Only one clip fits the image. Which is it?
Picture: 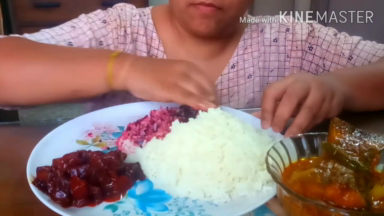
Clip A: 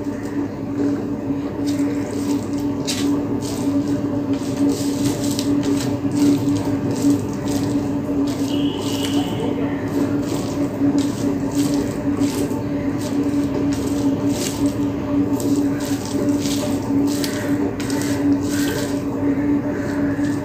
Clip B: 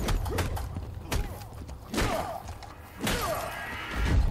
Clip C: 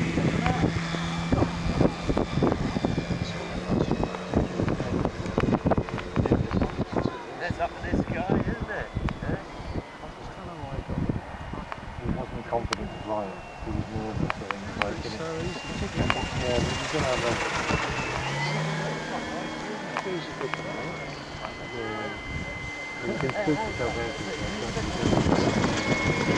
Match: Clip A